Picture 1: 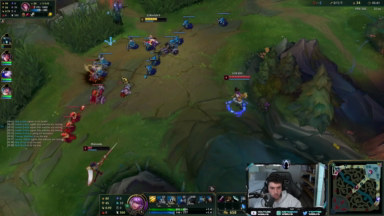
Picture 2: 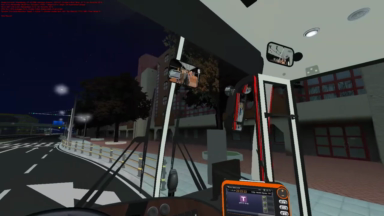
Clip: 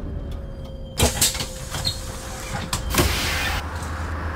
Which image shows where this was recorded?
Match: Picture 2